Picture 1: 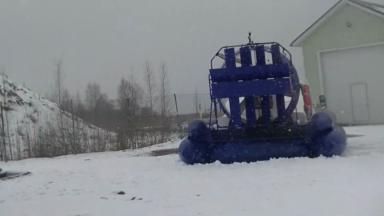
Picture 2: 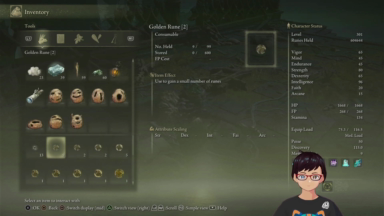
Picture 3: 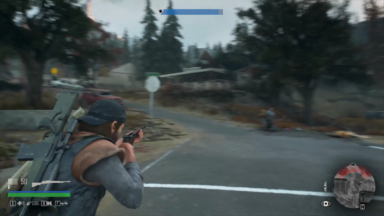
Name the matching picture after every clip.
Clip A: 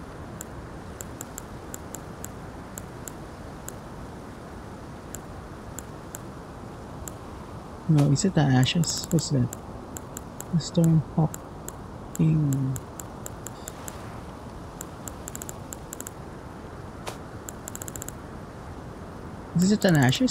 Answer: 2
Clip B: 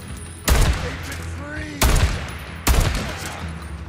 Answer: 3